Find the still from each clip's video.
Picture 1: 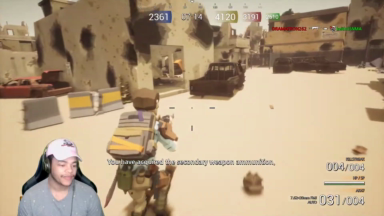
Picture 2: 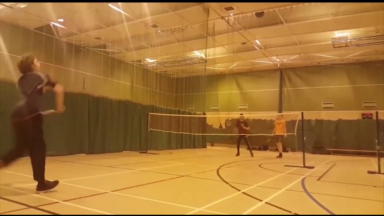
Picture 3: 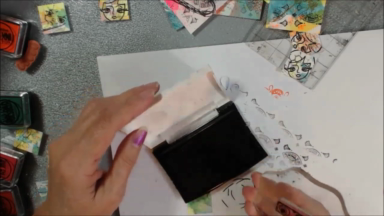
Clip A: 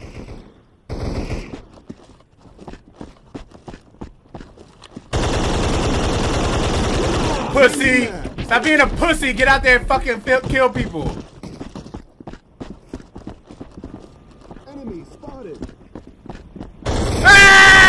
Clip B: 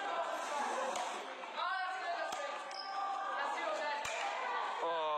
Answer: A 1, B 2